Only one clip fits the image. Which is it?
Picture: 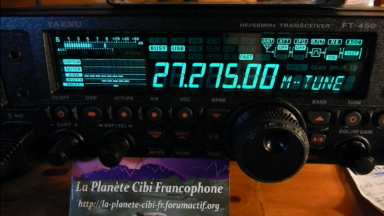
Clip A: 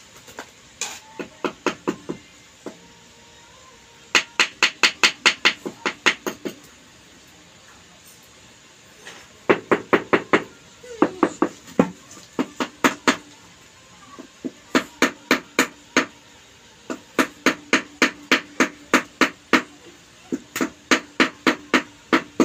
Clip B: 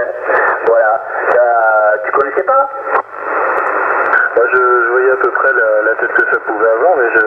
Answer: B